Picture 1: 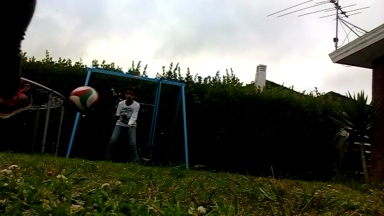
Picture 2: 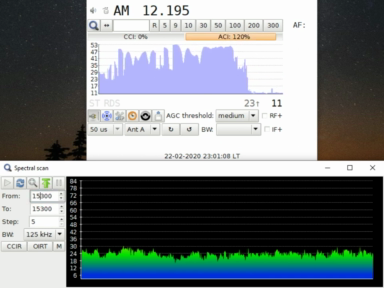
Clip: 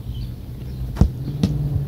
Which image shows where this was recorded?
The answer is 1